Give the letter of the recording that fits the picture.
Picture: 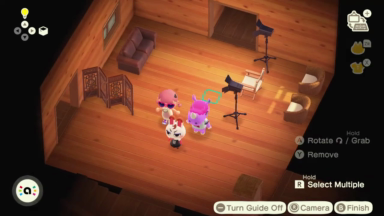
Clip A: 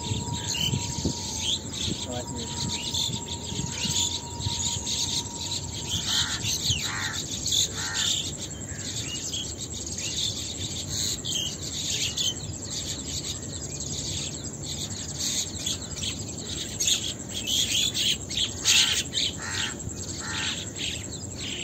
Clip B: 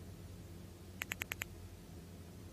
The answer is B